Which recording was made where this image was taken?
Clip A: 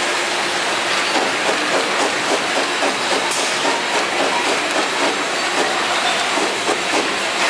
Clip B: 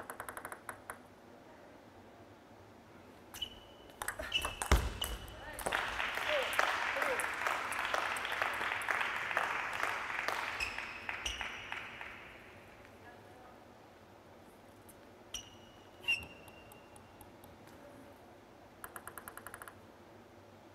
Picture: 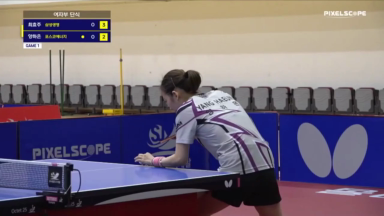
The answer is B